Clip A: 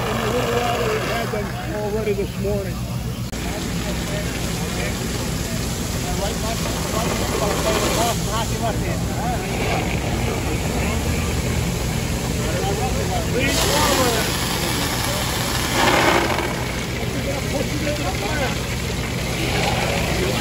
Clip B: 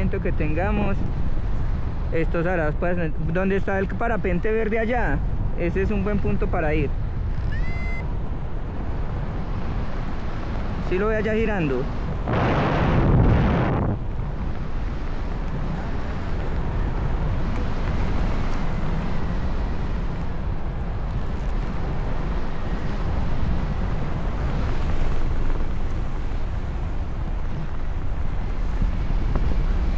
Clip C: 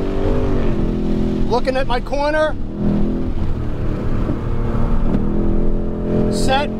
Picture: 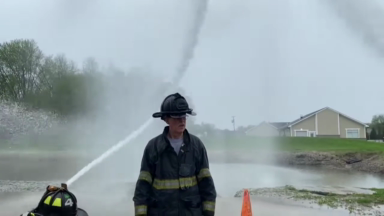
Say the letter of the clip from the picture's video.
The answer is A